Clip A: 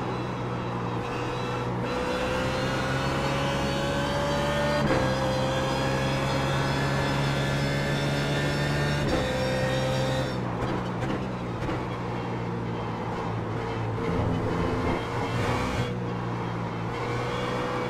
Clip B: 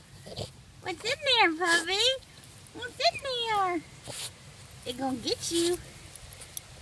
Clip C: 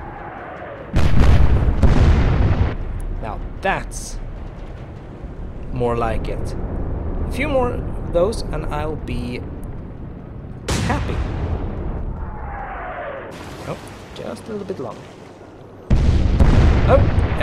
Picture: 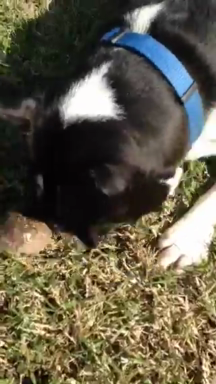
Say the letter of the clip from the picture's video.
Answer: B